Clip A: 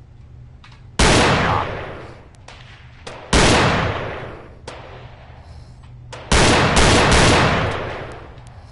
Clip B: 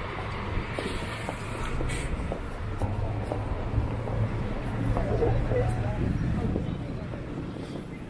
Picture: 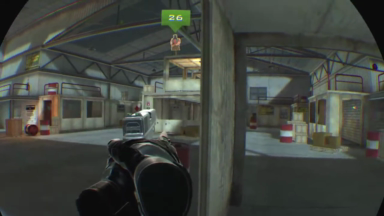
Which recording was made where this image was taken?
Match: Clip A